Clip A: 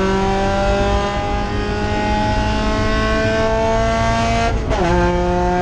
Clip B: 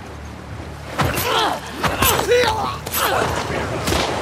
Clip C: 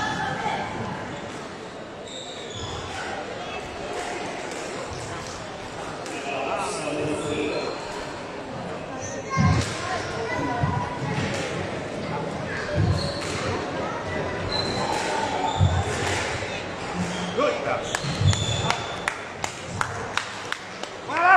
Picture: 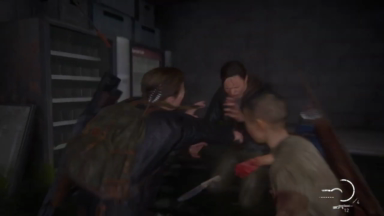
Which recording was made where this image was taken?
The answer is B